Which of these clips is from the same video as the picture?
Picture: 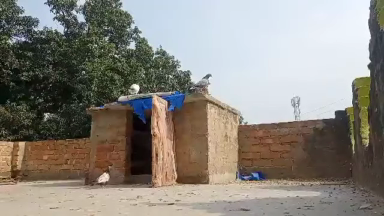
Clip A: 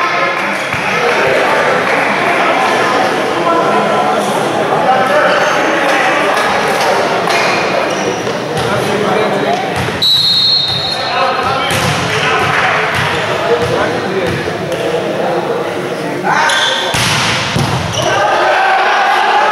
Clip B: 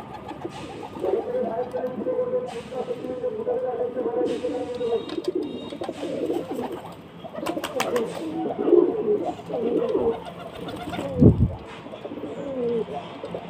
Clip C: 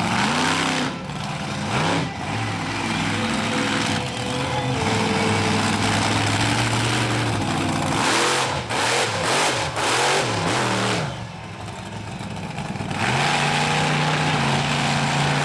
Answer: B